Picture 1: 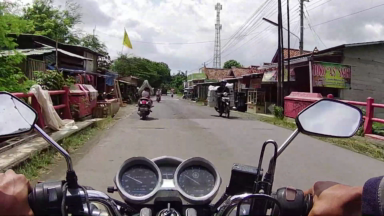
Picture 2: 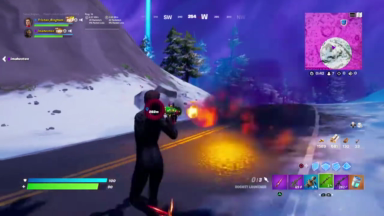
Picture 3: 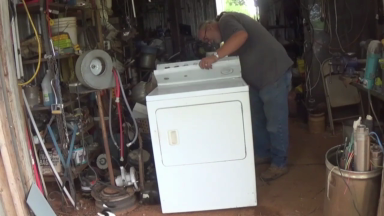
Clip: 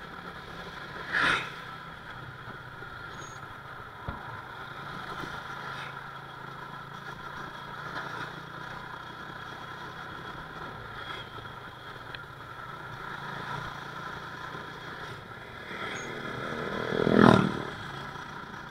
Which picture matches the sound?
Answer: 1